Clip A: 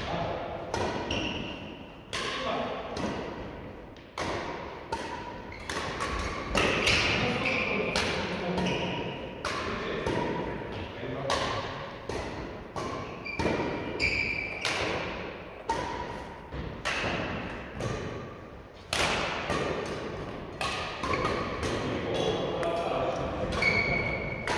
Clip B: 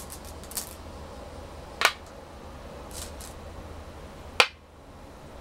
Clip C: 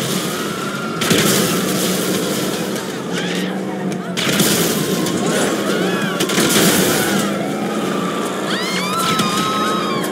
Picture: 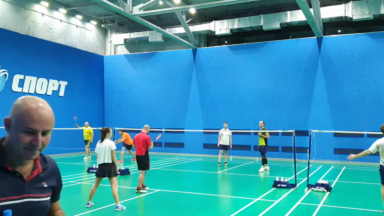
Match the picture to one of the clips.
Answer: A